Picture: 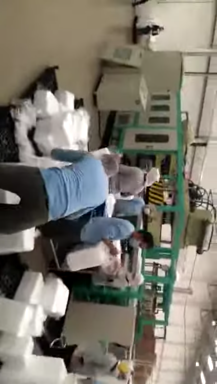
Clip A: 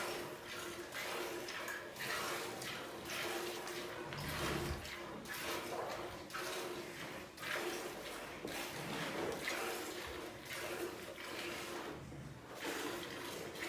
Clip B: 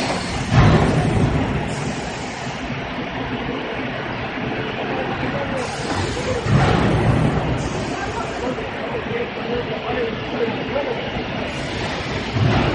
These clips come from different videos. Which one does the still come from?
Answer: B